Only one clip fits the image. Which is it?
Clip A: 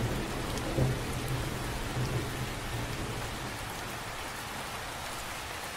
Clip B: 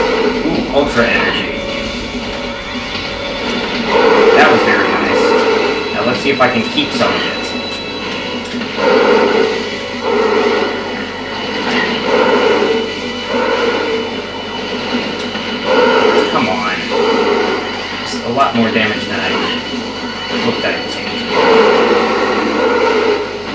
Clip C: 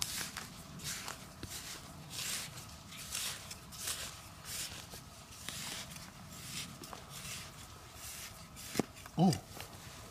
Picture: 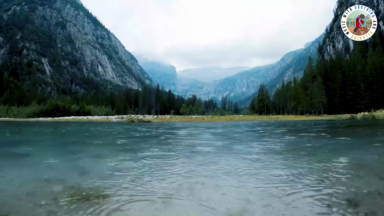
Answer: A